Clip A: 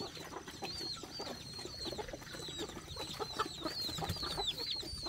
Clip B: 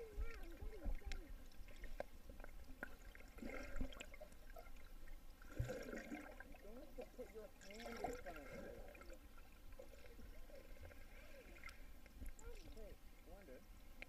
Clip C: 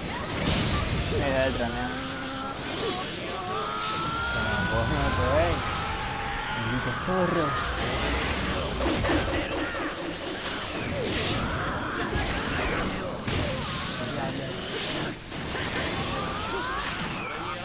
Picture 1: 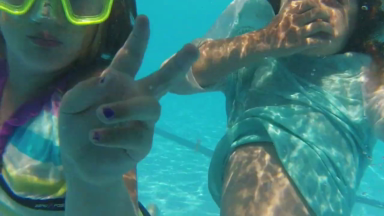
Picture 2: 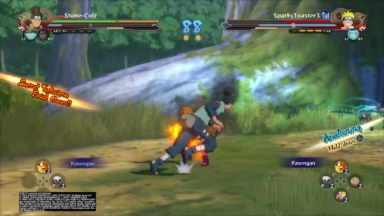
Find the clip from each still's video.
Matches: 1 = B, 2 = C